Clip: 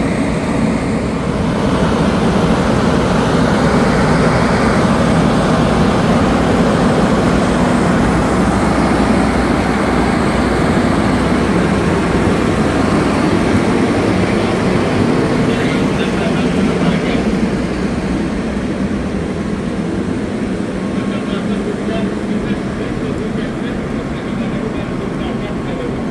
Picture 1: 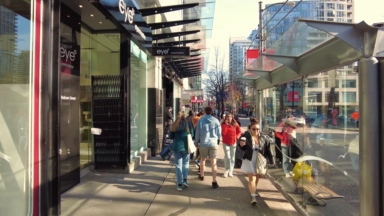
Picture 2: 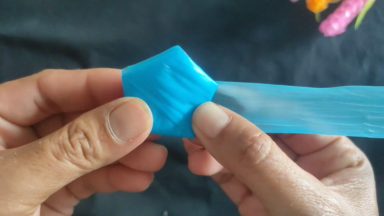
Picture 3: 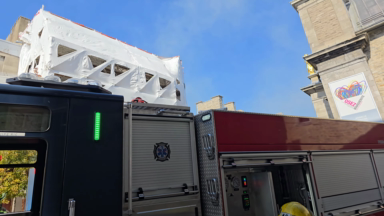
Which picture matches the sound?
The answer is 3